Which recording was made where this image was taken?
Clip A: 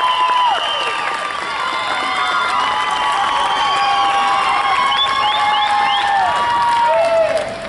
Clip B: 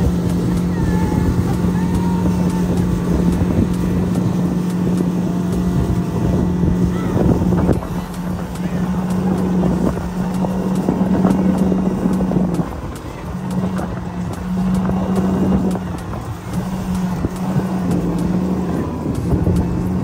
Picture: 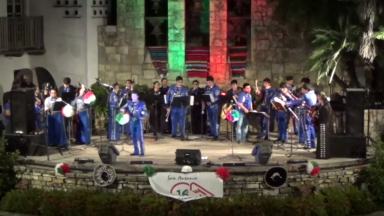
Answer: A